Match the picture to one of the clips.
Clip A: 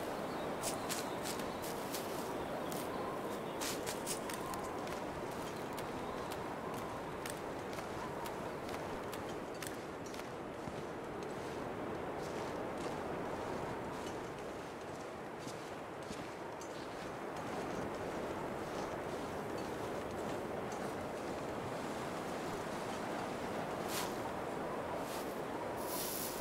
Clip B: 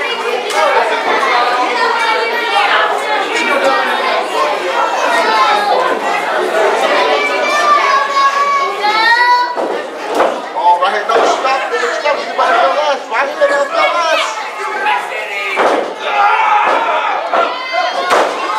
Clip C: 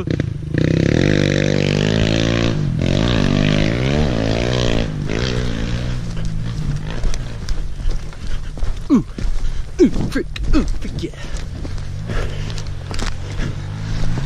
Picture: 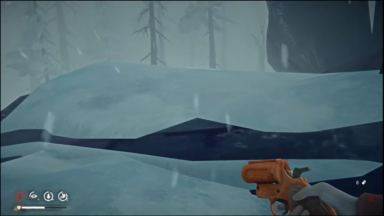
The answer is A